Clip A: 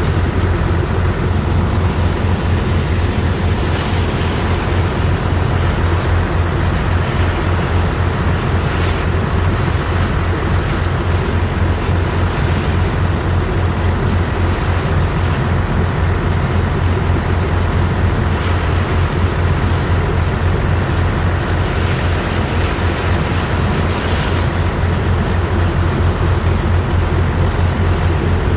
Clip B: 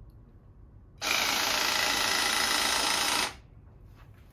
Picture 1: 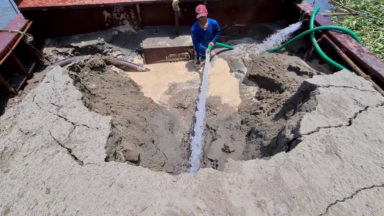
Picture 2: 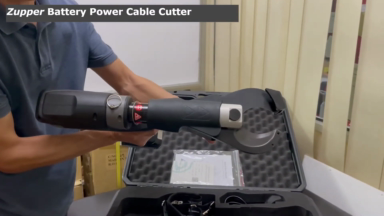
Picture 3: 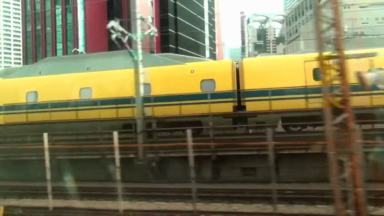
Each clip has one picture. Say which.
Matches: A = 1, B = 2